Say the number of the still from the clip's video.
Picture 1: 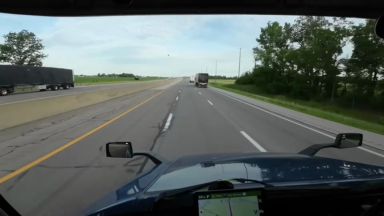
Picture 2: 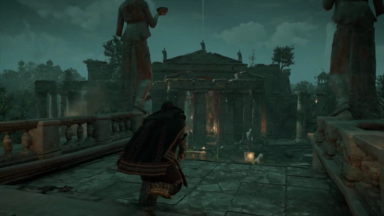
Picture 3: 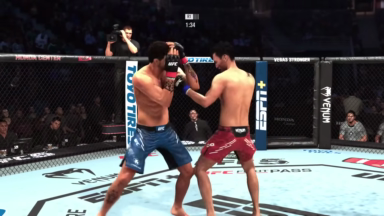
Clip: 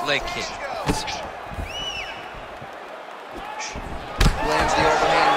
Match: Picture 3